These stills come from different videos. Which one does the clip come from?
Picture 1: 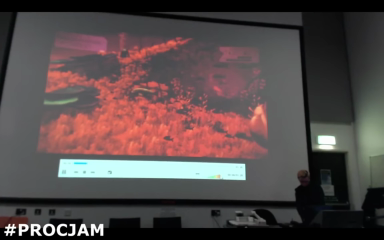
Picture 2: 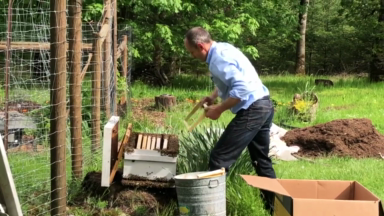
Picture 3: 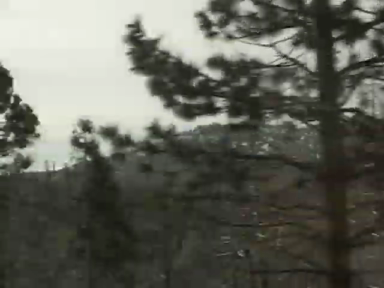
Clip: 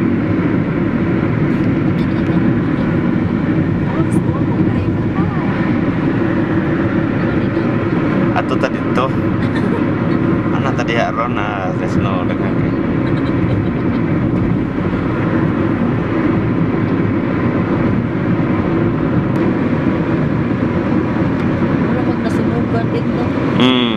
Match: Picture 3